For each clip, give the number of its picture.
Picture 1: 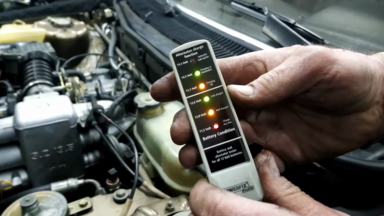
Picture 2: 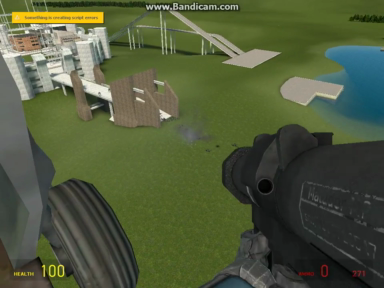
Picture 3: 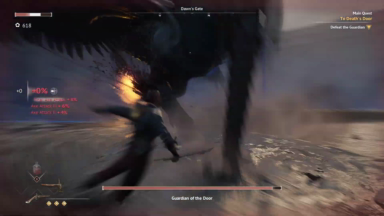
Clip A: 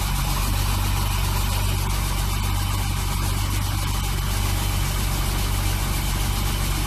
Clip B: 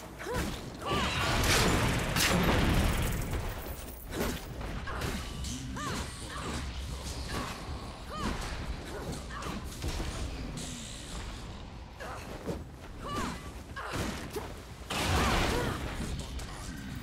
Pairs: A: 1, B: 3